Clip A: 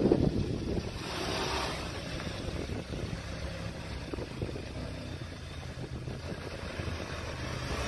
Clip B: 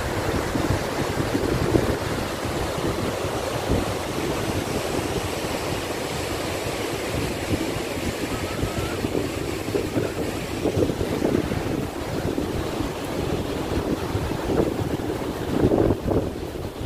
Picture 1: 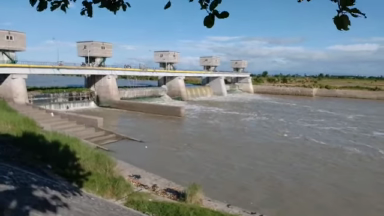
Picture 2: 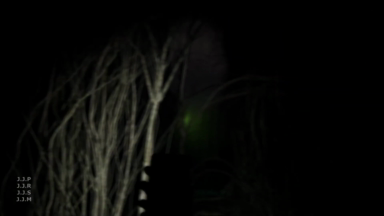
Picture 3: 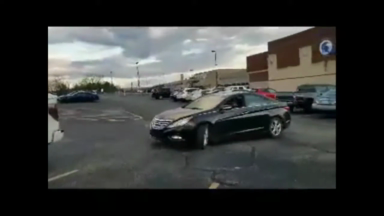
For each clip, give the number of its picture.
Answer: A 3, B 1